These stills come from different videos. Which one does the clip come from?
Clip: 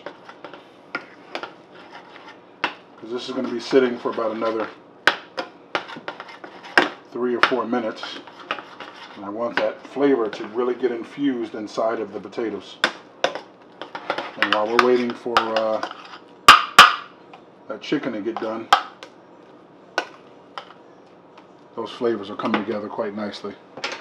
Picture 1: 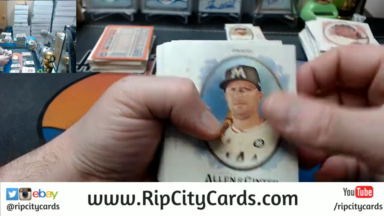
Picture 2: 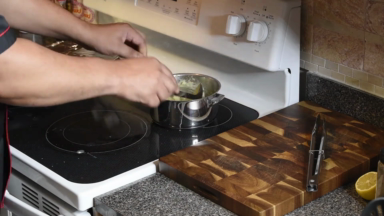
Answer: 2